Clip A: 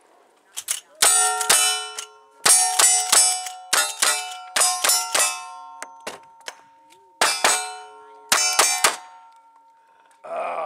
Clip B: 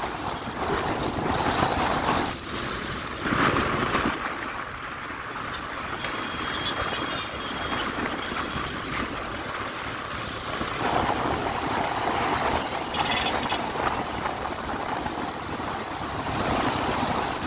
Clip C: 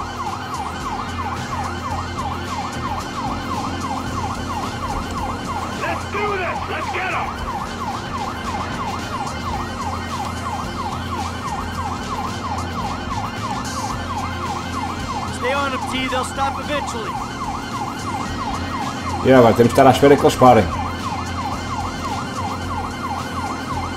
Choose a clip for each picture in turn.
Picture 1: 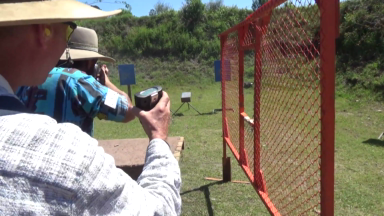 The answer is A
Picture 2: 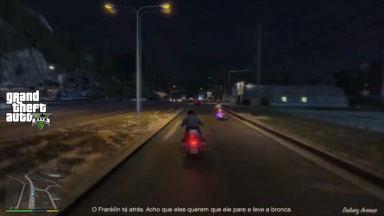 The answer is C